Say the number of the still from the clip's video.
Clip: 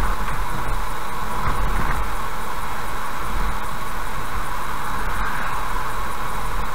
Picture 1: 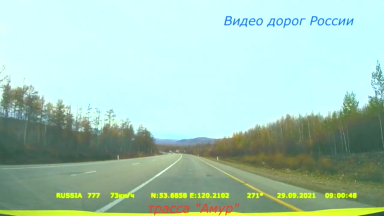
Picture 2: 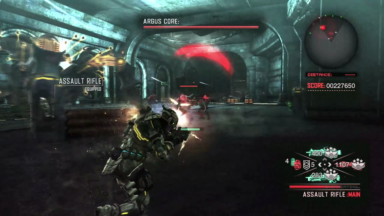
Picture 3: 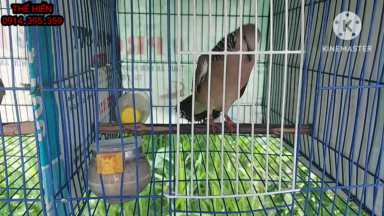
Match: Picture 1